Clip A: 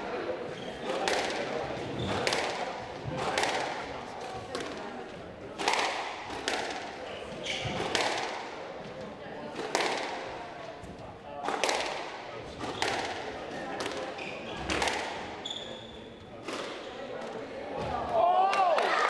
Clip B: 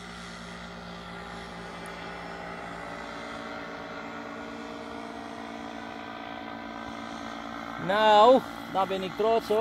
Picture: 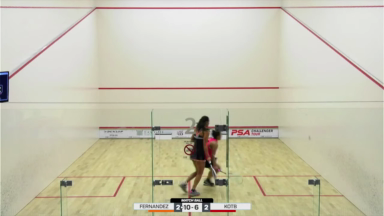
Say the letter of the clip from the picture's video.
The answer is A